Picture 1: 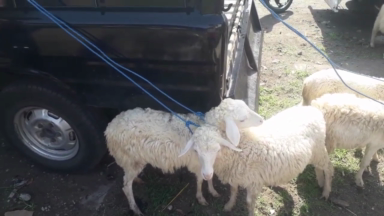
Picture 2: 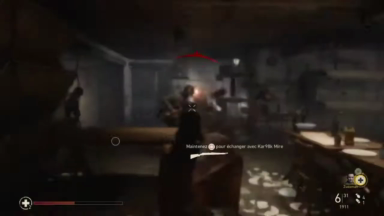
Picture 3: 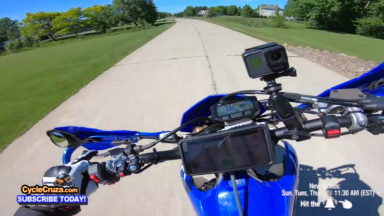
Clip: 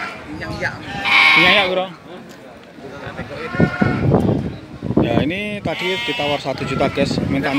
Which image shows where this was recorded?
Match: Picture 1